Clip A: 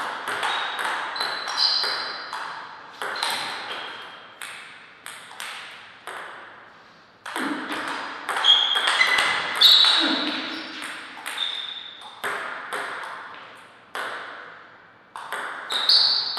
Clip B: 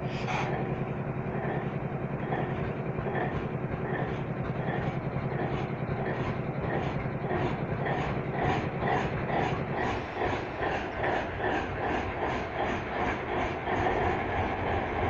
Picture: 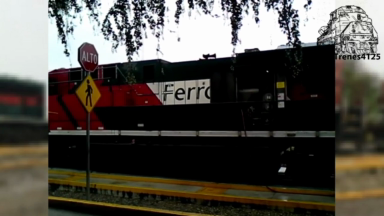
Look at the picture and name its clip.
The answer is B